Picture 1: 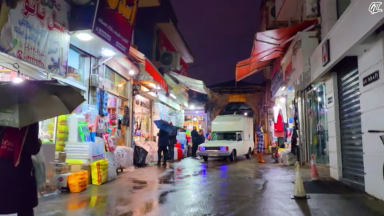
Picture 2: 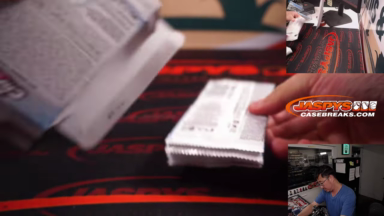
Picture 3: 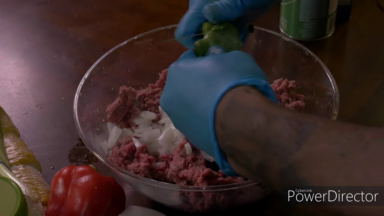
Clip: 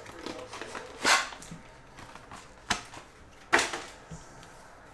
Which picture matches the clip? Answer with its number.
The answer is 2